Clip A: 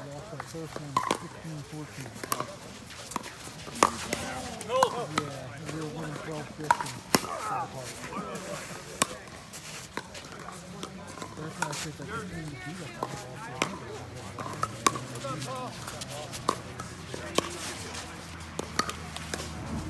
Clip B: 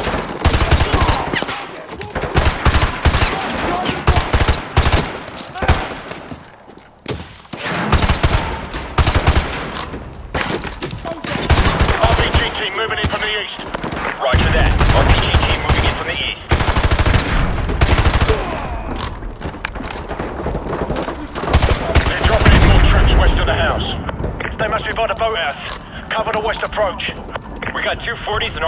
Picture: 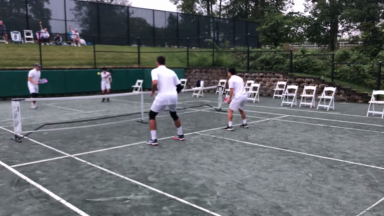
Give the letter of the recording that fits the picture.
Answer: A